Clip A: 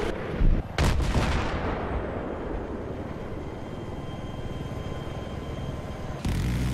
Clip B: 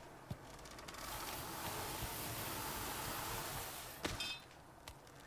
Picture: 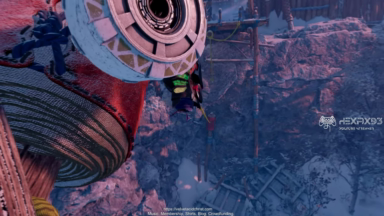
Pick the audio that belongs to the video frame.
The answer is B